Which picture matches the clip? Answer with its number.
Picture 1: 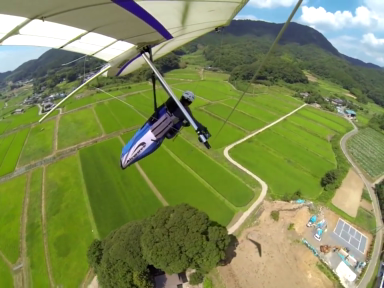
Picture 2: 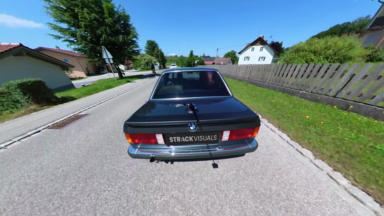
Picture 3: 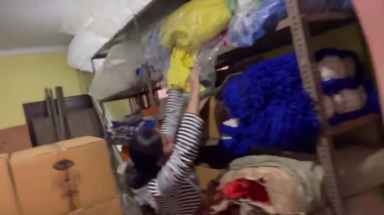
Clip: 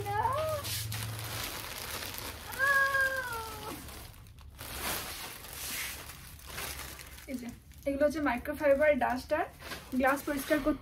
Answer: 3